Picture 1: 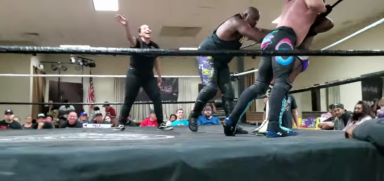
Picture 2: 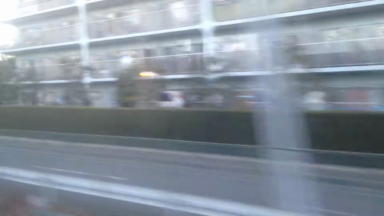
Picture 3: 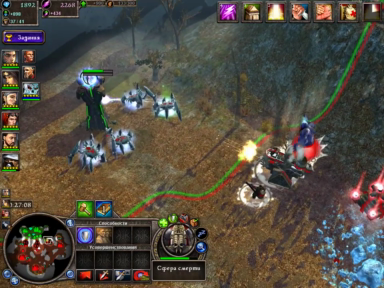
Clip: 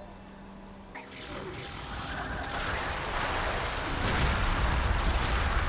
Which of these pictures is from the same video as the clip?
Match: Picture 3